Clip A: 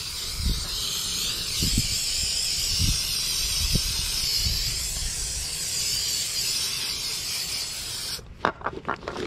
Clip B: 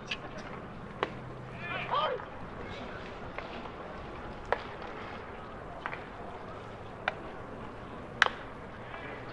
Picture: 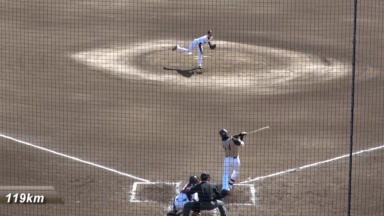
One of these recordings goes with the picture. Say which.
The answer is B